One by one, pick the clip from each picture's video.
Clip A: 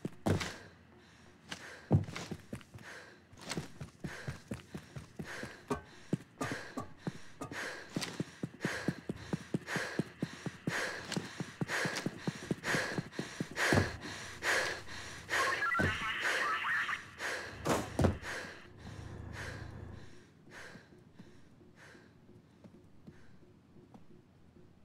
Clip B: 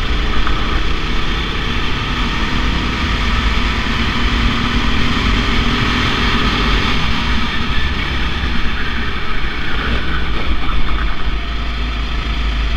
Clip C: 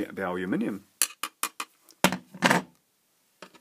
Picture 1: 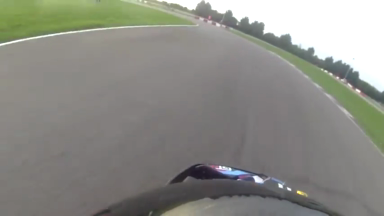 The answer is B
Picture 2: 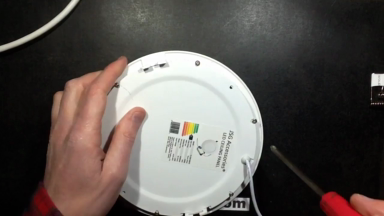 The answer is C